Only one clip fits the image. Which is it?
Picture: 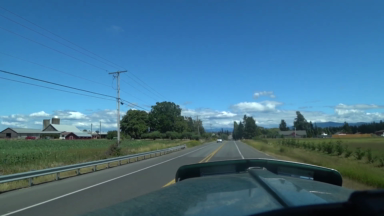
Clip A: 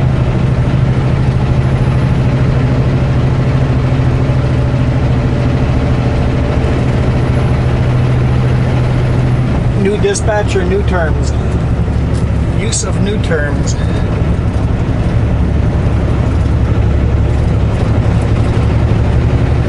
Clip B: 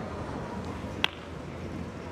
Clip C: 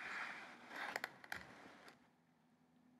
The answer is A